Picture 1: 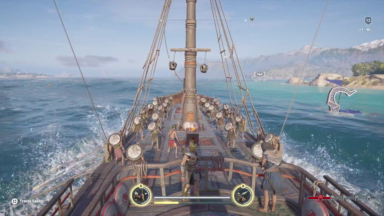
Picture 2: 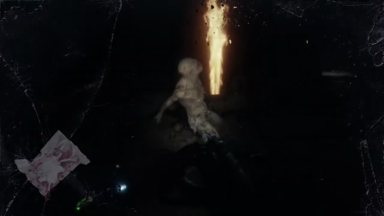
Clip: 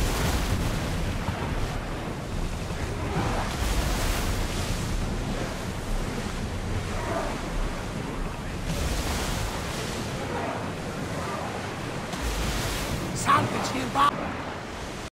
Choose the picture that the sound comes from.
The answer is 1